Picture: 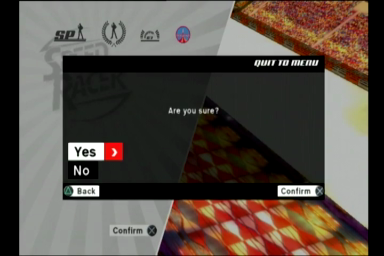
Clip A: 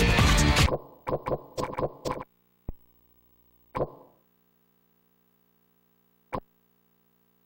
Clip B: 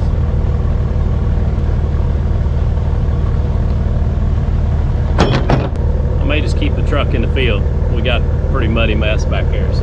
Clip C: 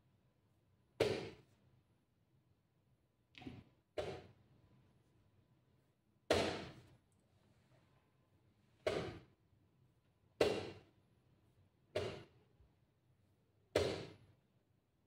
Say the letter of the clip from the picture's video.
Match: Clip A